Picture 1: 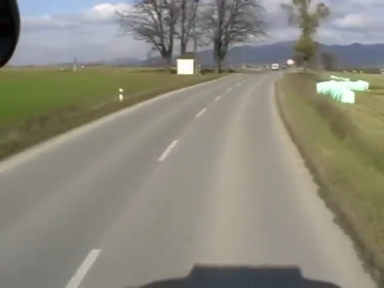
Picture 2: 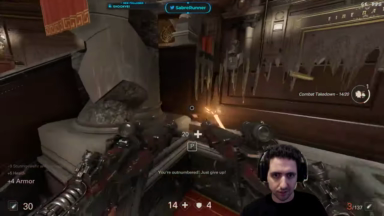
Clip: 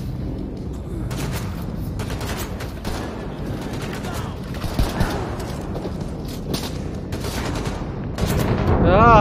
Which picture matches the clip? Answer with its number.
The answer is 2